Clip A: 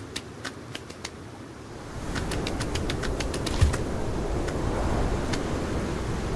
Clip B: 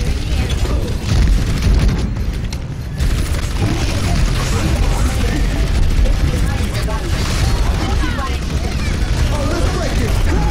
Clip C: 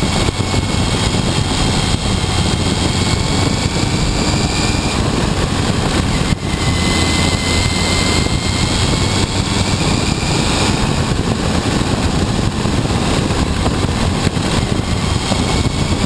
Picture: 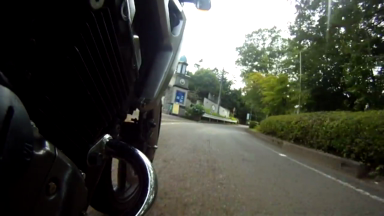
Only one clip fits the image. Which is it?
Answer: C